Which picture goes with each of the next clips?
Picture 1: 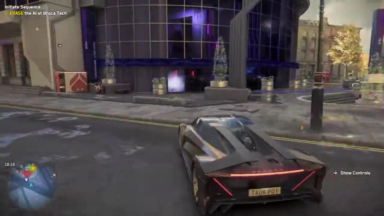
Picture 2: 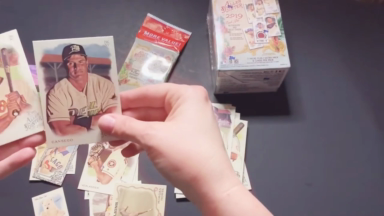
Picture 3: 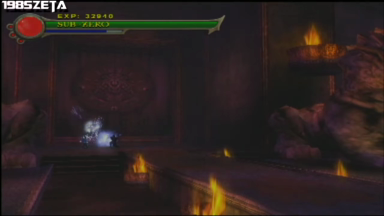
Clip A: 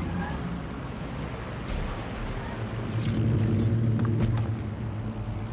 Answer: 1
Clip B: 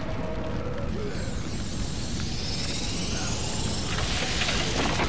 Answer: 3